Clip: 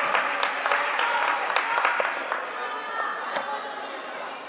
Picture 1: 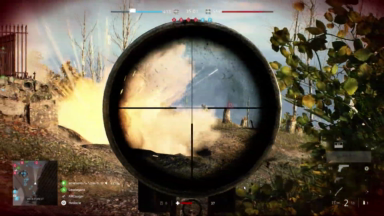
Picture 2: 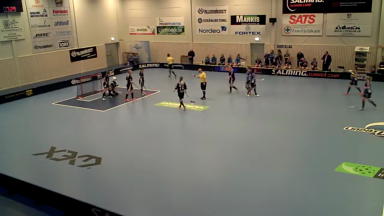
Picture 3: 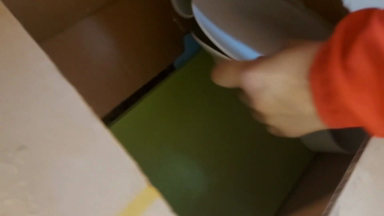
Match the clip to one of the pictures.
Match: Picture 2